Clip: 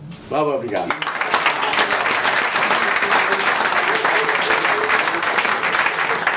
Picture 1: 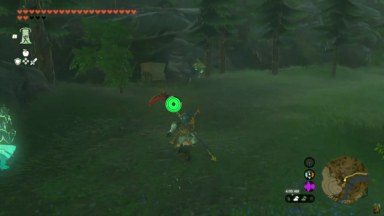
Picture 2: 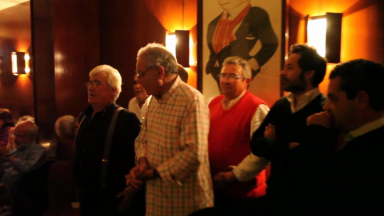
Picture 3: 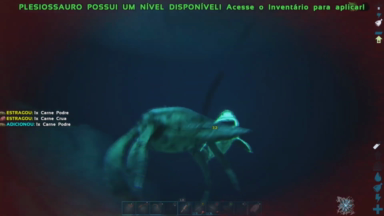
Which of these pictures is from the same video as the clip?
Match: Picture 2